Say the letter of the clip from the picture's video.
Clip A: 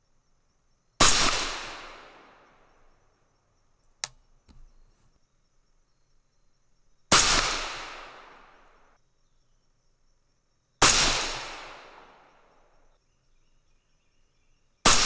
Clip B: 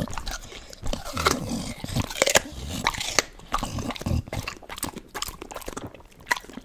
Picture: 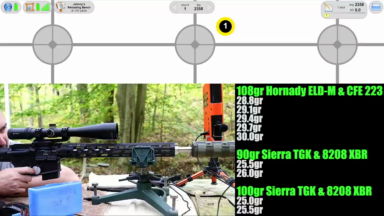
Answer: A